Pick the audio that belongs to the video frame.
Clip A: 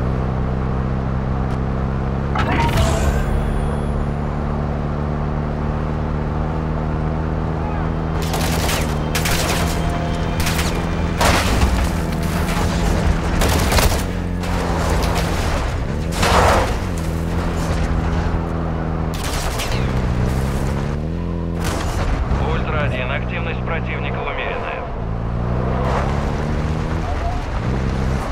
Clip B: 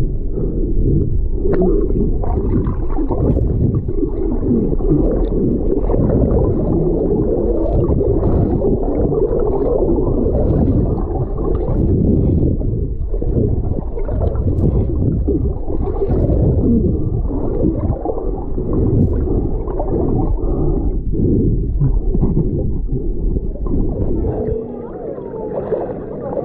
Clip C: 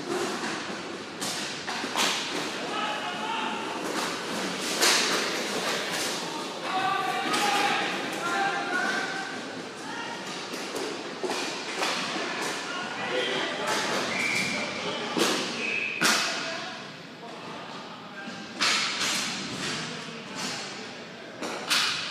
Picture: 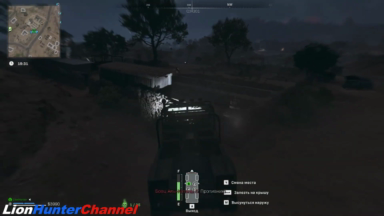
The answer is A